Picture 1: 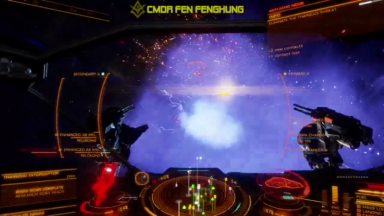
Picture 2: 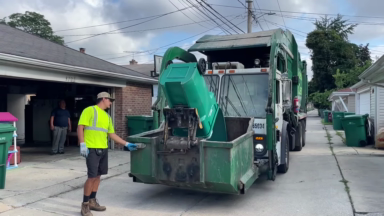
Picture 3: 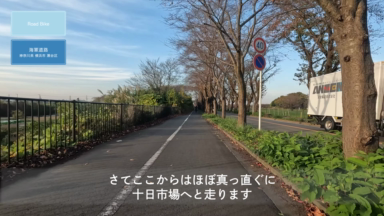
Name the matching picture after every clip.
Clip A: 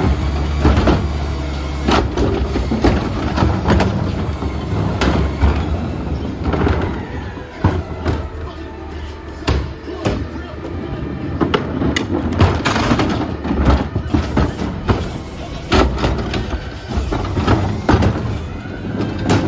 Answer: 2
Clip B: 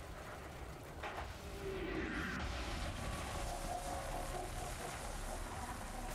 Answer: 1